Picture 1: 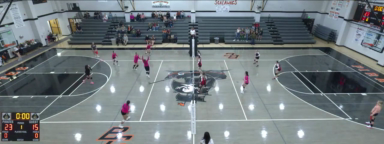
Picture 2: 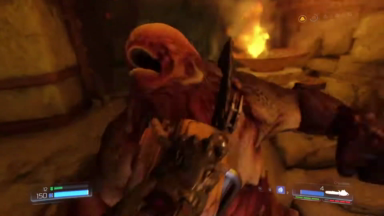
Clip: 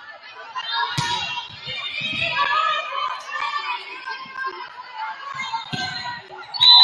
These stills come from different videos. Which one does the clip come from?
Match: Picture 1